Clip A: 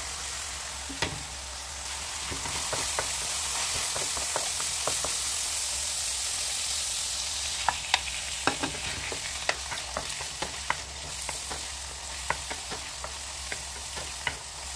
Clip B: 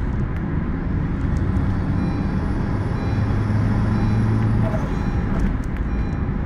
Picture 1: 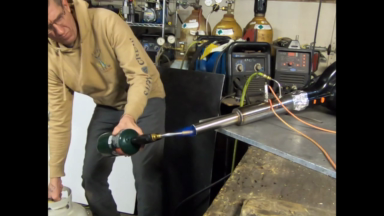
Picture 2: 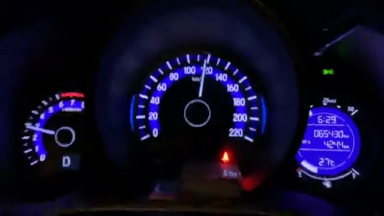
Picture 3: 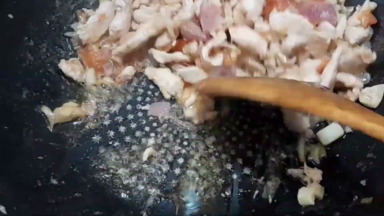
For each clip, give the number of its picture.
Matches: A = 3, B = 2